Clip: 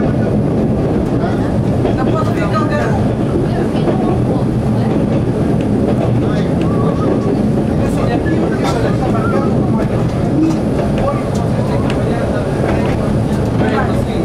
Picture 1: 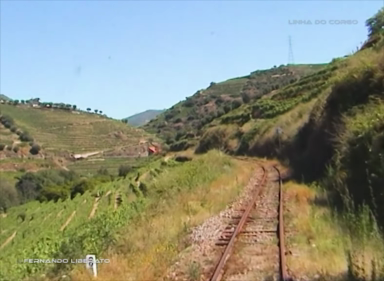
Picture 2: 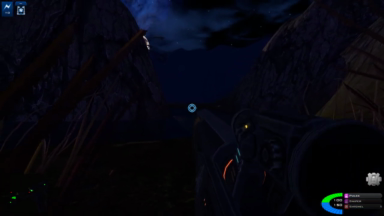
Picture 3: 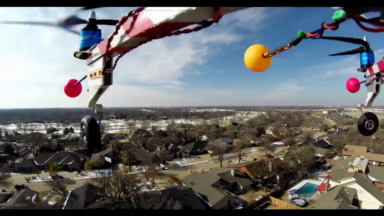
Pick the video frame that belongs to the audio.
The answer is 1